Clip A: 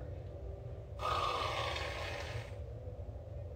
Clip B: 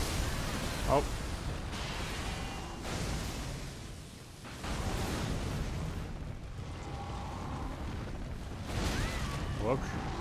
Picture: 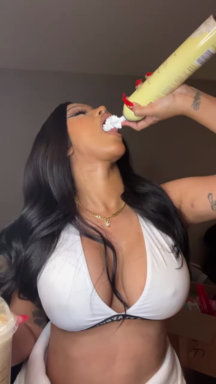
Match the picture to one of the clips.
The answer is A